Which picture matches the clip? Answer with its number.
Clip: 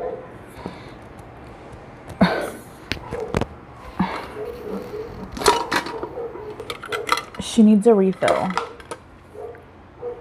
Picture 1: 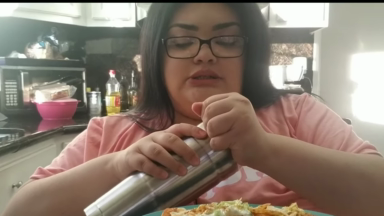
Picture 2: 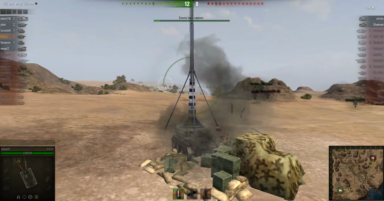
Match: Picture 1